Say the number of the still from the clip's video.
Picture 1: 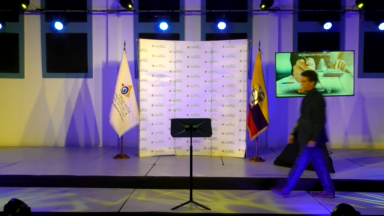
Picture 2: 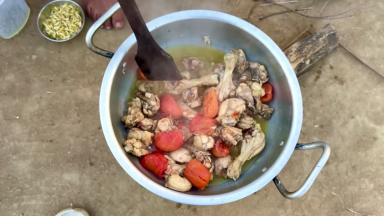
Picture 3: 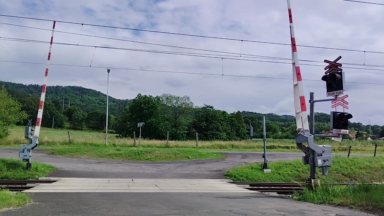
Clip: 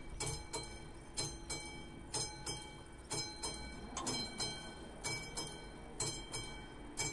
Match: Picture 3